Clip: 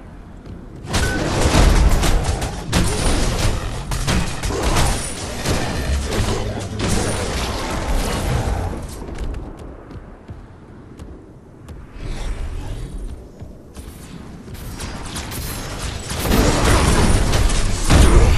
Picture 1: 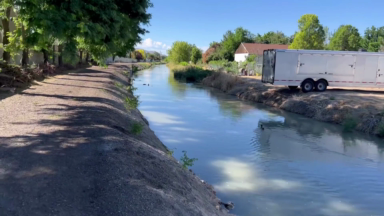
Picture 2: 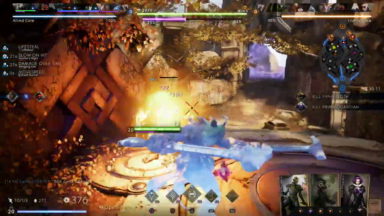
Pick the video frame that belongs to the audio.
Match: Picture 2